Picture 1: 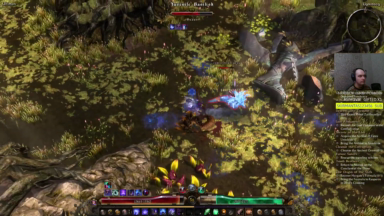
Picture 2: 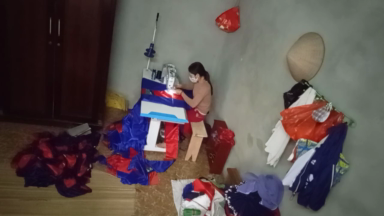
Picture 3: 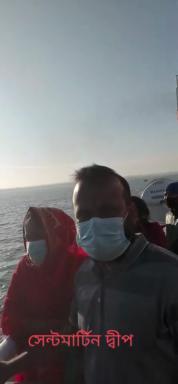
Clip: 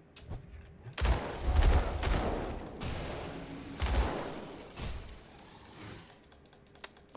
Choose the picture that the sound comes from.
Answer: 1